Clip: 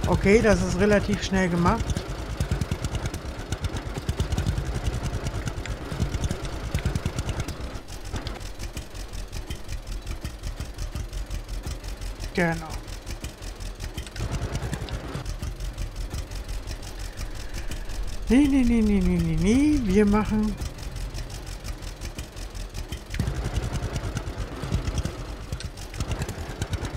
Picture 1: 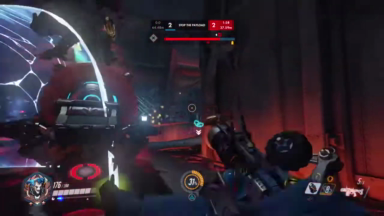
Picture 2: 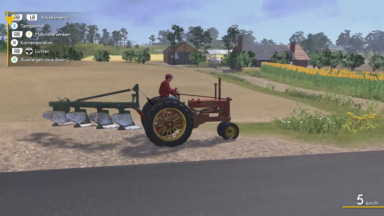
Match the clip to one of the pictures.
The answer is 2